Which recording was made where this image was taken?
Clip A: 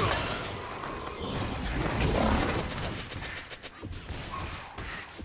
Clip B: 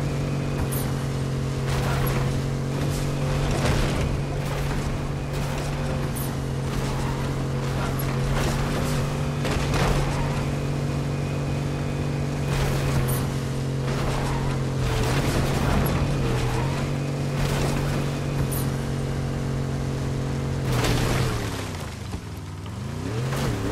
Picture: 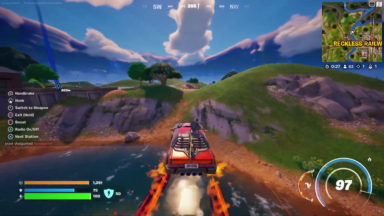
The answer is B